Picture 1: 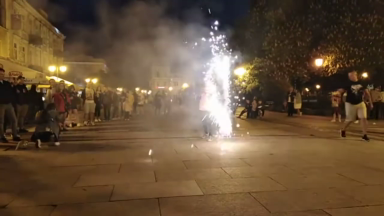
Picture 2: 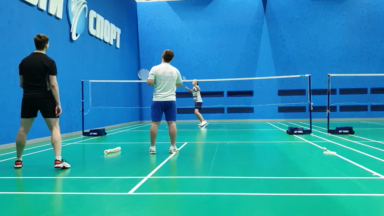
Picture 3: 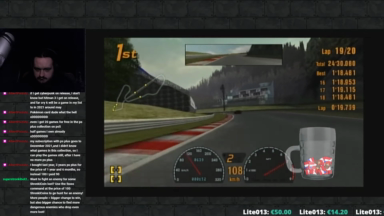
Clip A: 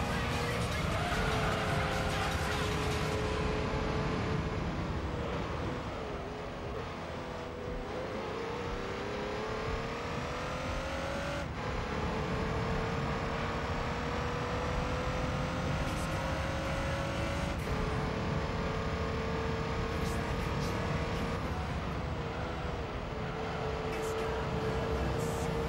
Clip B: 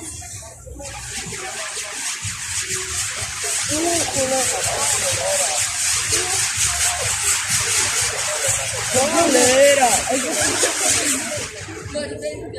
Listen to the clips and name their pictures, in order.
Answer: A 3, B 1